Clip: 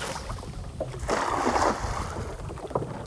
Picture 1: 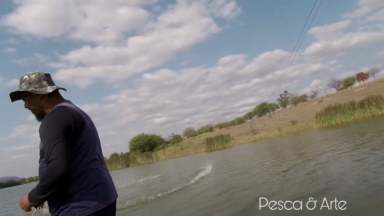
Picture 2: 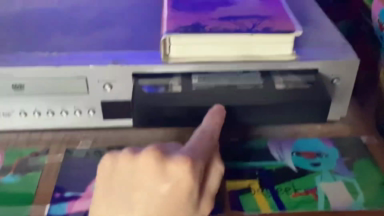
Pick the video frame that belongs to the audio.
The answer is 1